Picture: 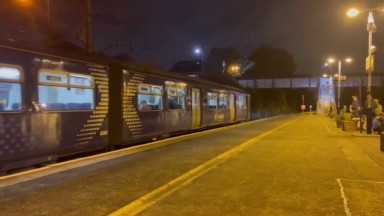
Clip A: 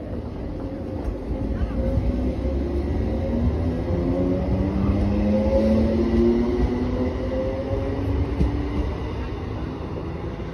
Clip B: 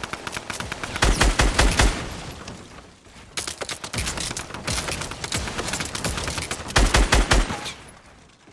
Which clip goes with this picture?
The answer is A